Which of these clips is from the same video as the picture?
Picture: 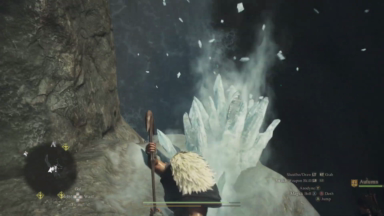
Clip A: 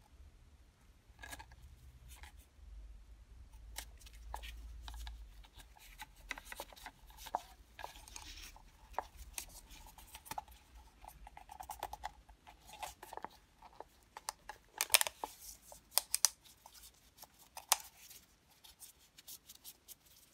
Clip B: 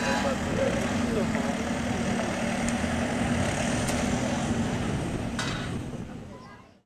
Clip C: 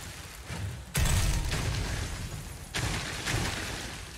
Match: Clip C